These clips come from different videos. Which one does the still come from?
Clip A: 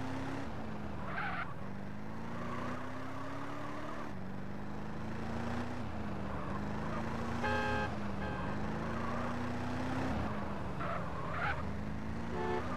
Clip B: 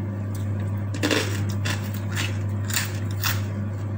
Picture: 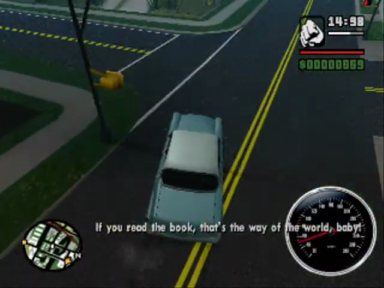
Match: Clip A